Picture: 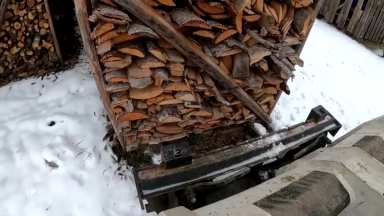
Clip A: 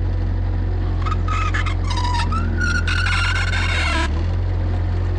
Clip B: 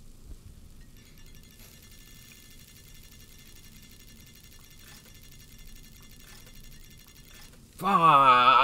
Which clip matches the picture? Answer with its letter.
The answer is A